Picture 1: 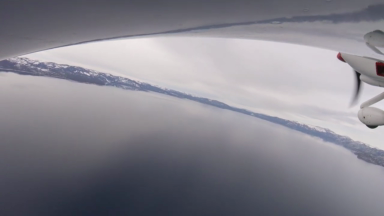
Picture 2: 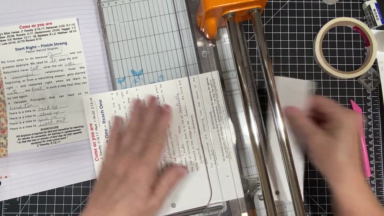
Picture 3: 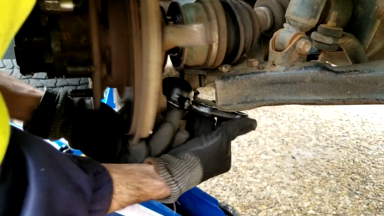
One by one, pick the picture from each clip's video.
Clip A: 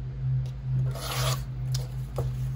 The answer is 2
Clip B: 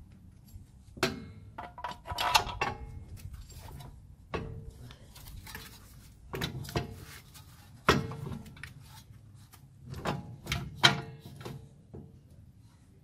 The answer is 3